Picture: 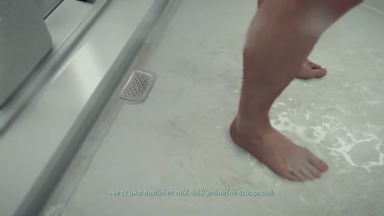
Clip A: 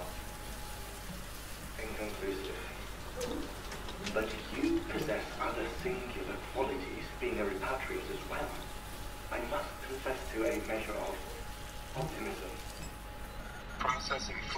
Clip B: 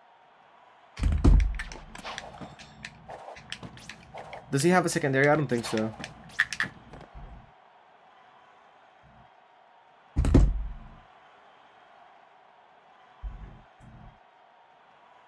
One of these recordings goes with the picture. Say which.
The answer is A